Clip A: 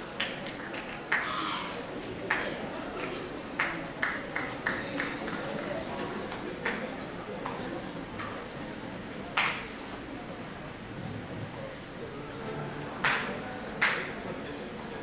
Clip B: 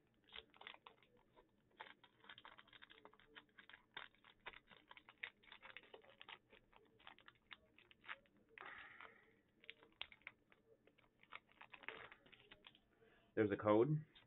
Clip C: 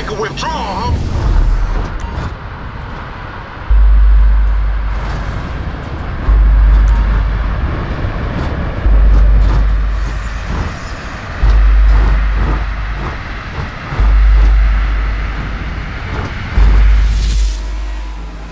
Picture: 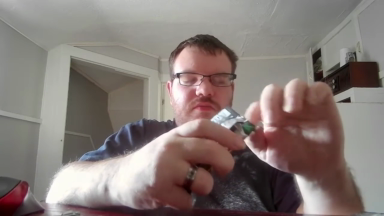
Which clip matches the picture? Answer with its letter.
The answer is B